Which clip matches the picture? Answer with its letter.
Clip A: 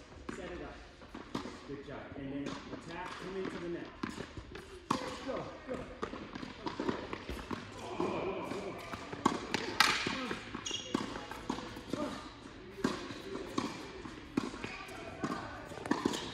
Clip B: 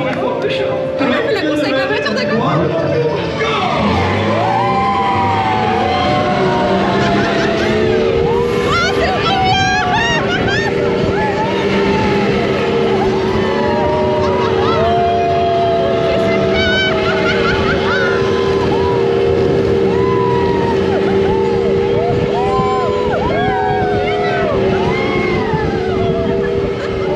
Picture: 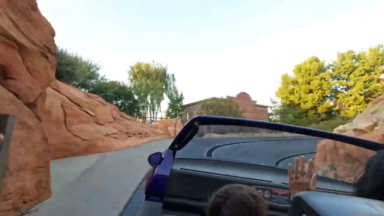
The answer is B